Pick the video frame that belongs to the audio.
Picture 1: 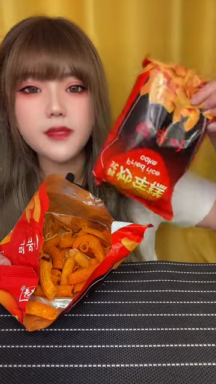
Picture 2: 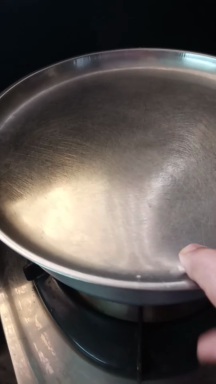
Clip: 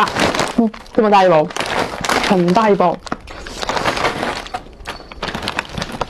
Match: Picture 1